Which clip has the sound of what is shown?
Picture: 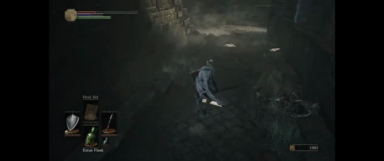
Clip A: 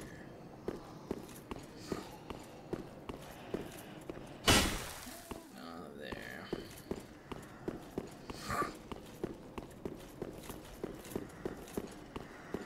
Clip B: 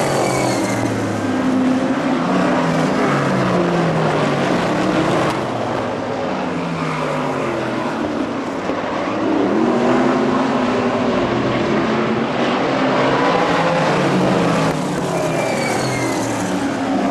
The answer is A